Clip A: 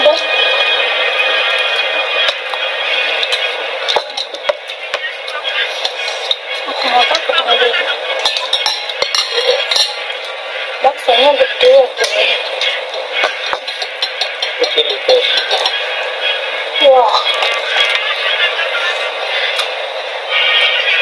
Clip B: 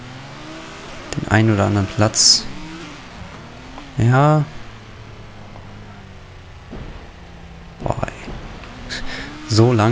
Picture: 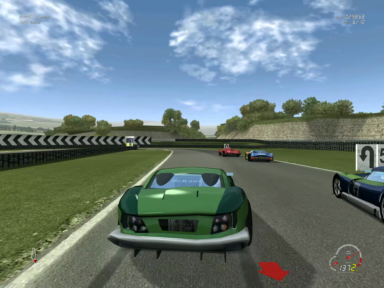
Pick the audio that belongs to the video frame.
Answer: B